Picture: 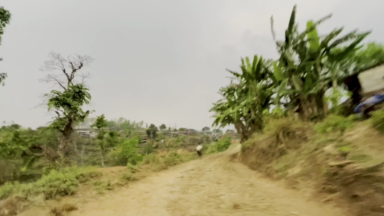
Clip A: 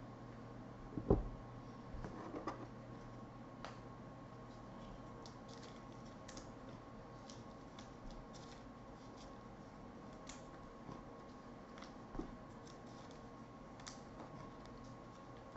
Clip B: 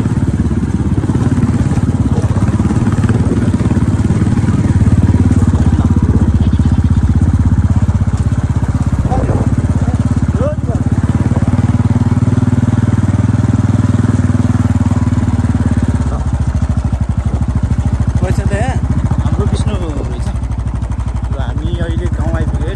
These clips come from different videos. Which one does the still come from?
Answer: B